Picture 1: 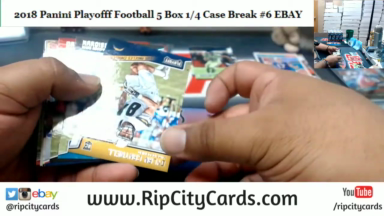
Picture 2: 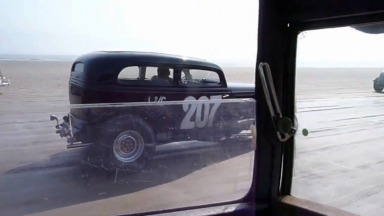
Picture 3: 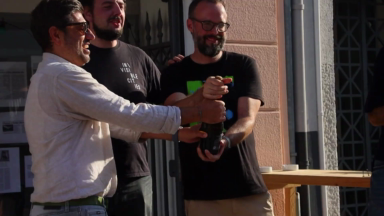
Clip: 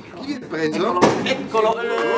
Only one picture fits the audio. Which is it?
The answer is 3